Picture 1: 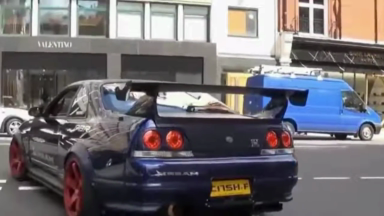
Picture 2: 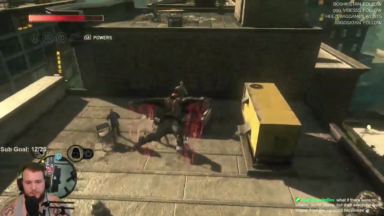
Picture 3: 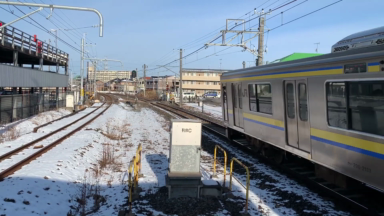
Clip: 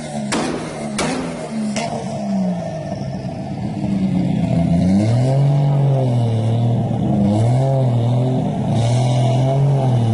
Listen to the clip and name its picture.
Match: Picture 1